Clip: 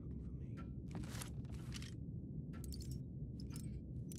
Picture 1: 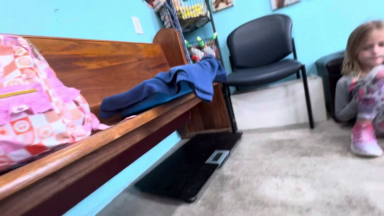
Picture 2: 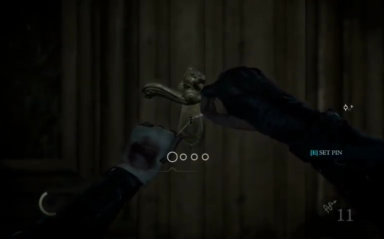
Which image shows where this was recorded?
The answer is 2